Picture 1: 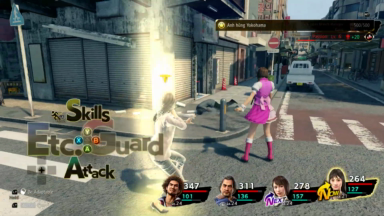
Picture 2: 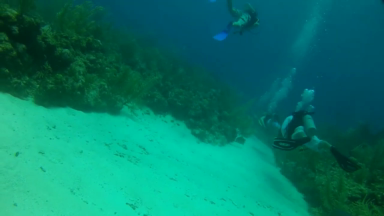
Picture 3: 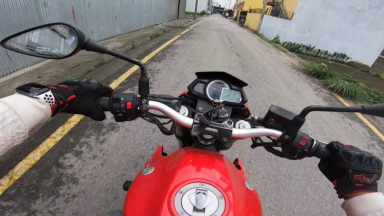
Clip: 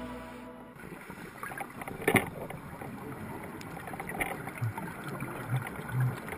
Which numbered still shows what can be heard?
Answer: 2